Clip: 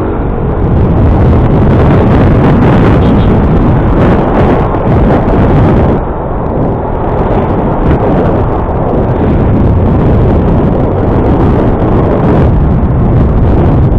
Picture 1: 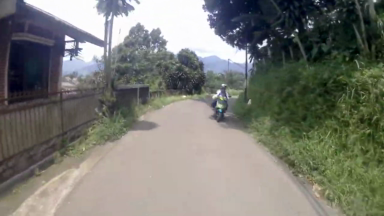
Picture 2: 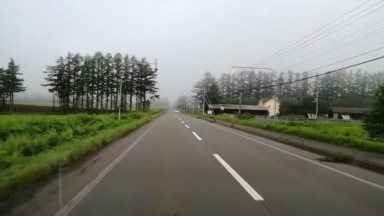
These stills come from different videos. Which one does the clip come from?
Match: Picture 1